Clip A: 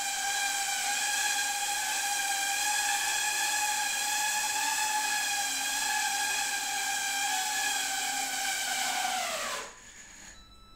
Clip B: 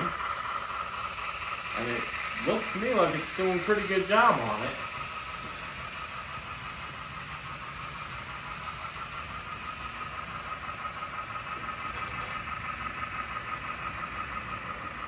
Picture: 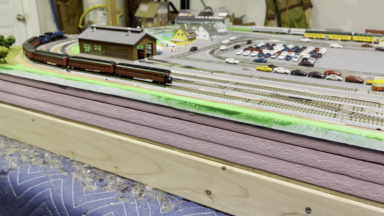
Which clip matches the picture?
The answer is B